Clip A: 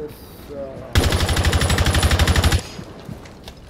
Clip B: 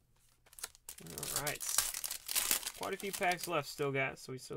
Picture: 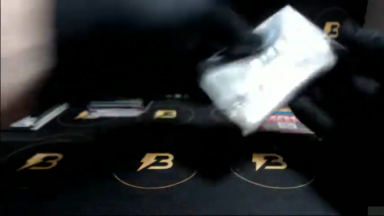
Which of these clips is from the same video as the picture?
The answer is B